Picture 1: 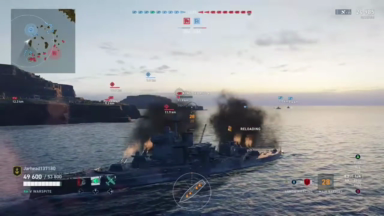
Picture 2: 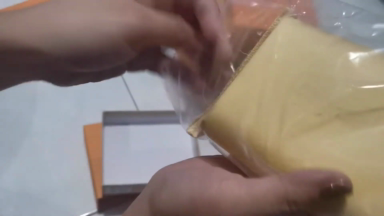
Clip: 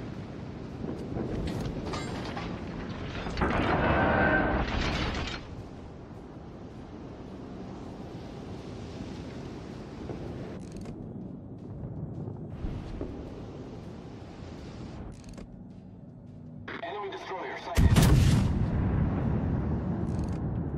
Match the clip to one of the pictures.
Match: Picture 1